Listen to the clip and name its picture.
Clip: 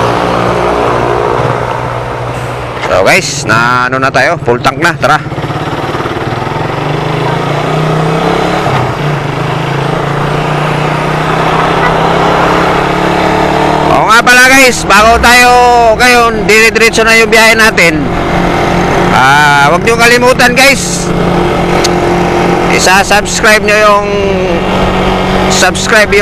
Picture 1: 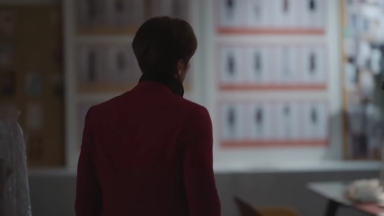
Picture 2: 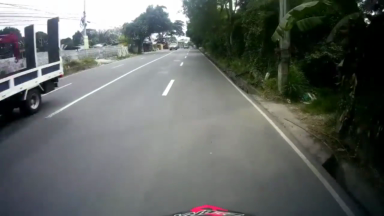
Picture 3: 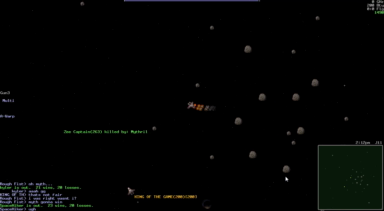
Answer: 2